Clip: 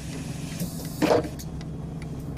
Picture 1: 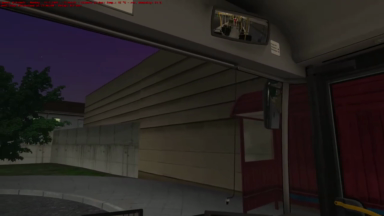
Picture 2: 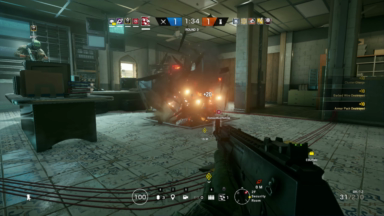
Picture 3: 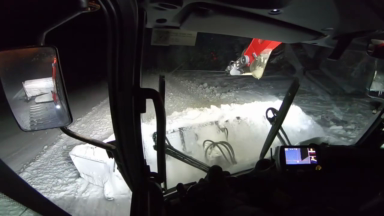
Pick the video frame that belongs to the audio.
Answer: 1